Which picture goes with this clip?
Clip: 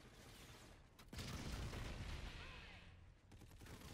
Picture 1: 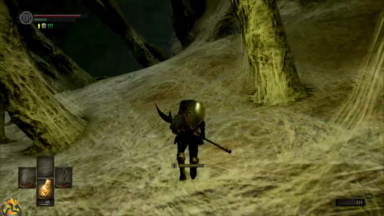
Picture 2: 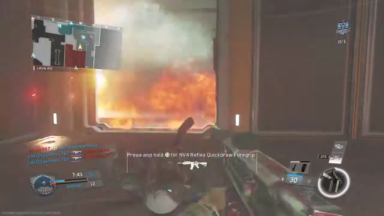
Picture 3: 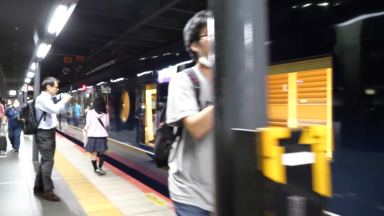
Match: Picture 2